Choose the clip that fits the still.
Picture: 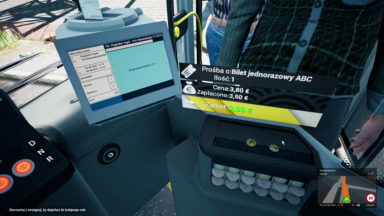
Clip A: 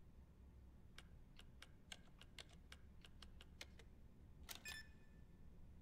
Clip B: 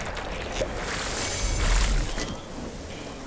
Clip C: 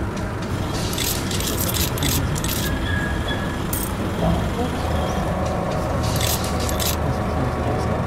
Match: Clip C